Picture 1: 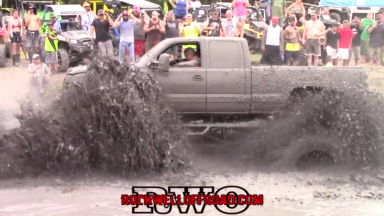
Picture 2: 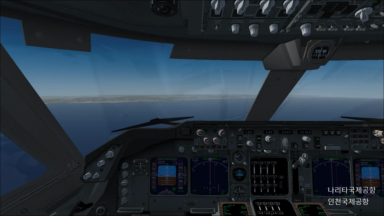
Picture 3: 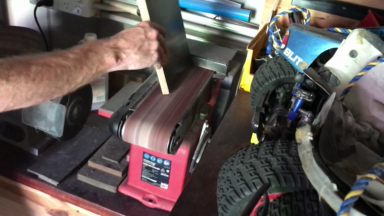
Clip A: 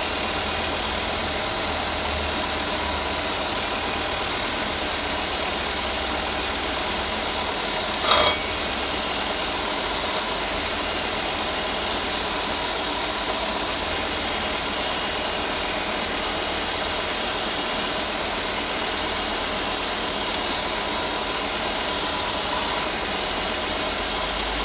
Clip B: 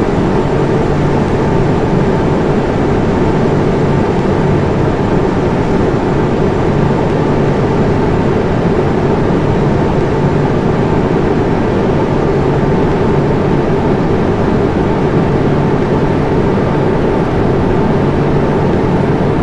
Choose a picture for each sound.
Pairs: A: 3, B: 2